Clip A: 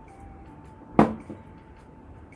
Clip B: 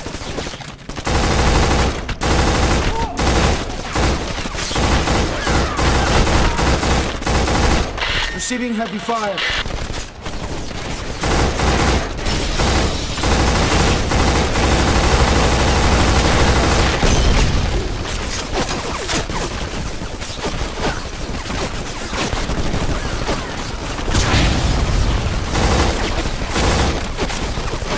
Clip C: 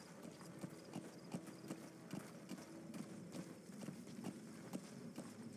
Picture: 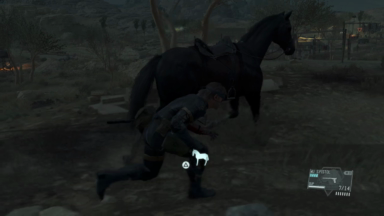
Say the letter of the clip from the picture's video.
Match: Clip C